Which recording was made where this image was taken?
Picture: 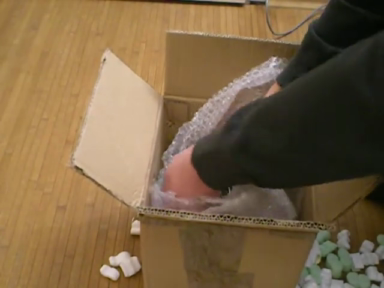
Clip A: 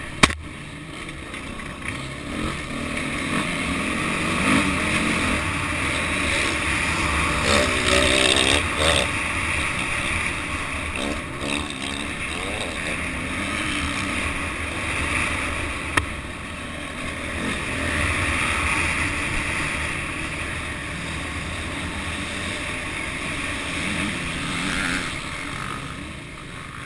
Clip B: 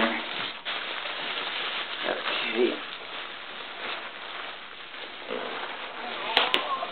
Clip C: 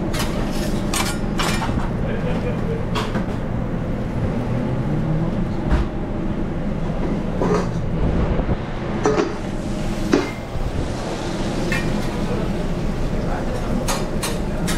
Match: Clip B